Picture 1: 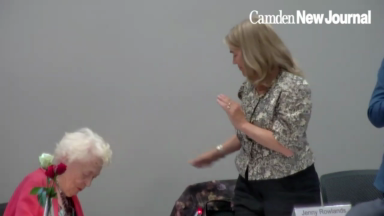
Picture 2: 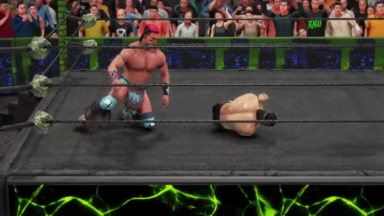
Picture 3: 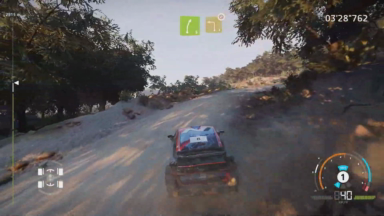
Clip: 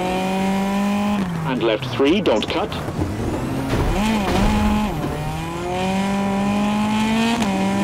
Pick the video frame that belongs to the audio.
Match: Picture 3